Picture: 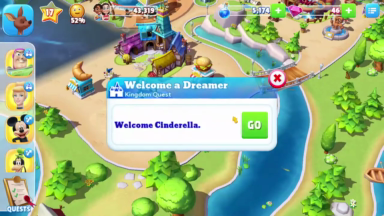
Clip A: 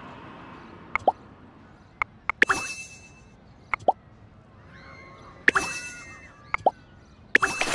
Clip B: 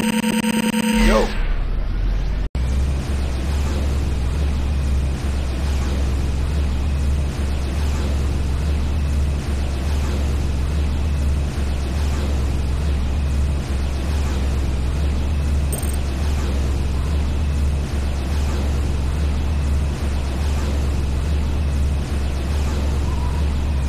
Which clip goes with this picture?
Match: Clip A